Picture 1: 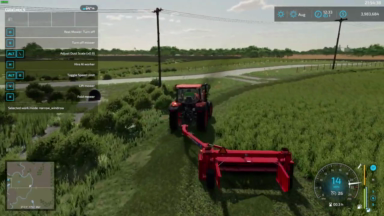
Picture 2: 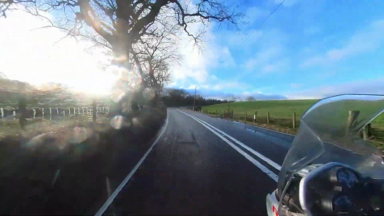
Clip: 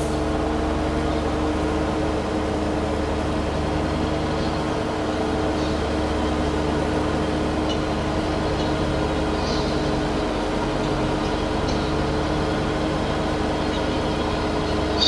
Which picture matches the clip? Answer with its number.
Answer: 1